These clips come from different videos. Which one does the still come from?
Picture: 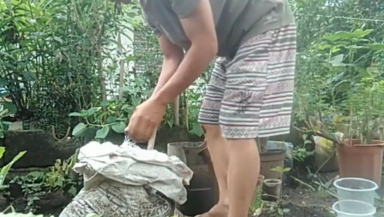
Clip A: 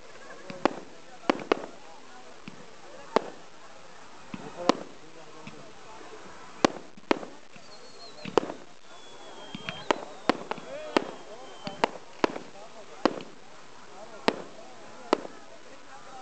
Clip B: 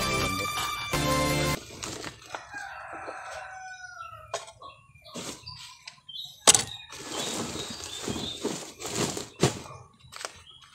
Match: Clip B